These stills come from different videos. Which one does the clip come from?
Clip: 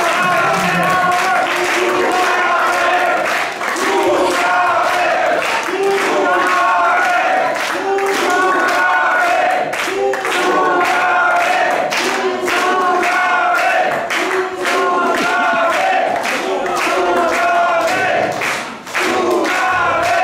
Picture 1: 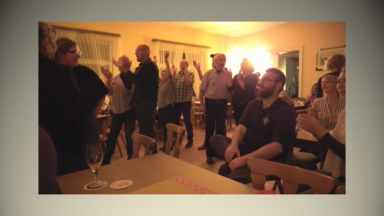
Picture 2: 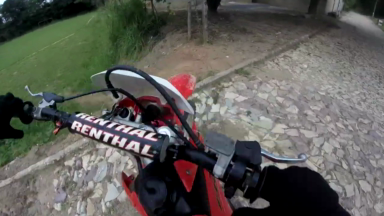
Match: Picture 1